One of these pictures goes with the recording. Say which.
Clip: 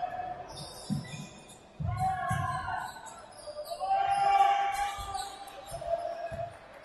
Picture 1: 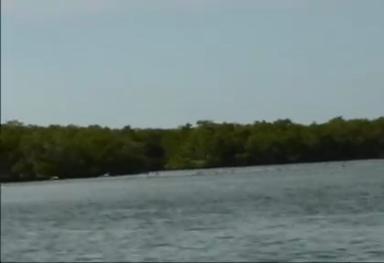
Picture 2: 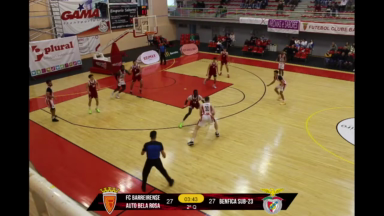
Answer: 2